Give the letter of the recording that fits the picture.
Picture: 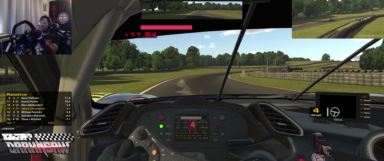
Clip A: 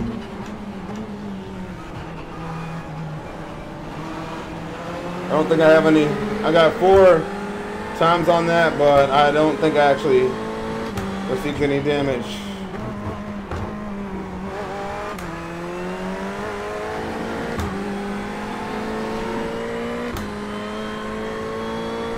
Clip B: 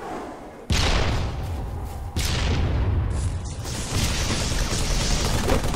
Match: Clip A